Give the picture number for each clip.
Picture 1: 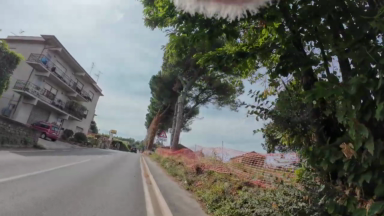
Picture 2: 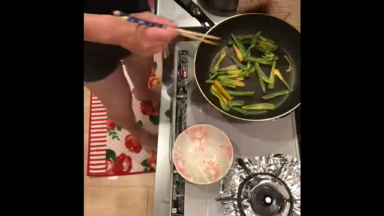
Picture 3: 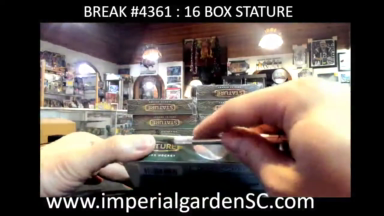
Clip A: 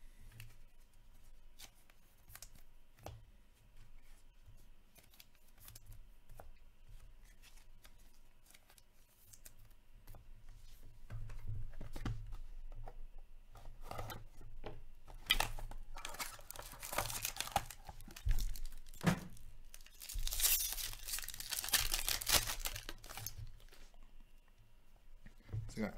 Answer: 3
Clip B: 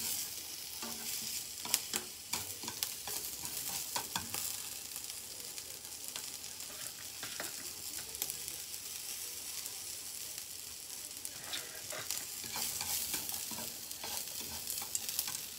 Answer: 2